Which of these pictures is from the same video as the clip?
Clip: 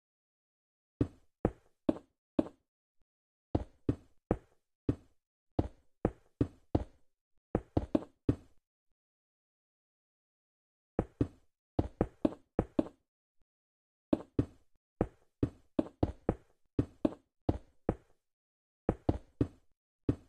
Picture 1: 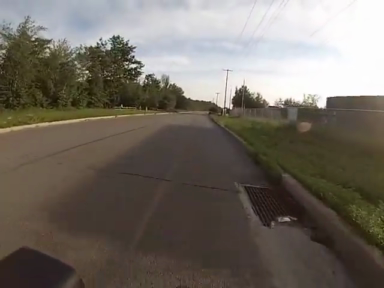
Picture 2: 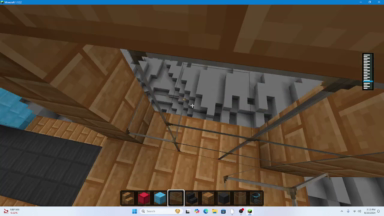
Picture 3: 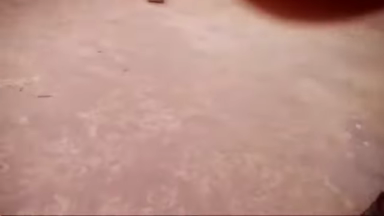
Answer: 2